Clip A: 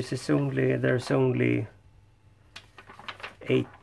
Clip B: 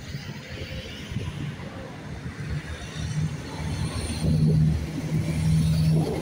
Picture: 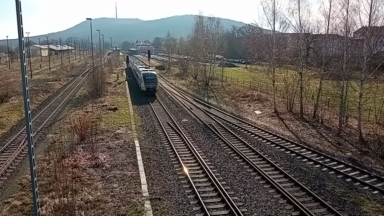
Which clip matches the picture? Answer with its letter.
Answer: B